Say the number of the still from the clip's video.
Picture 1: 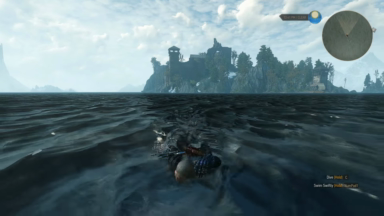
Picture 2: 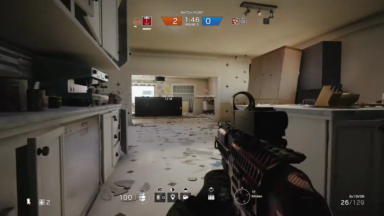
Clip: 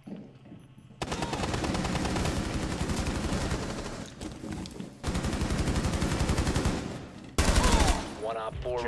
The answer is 2